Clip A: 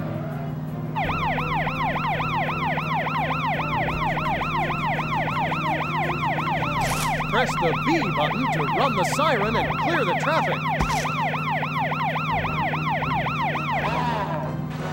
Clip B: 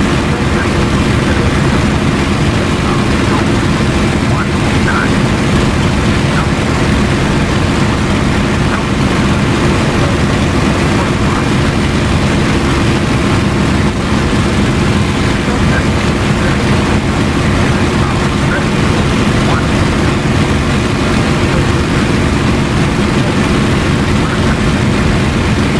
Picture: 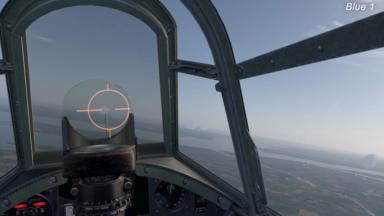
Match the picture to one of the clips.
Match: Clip B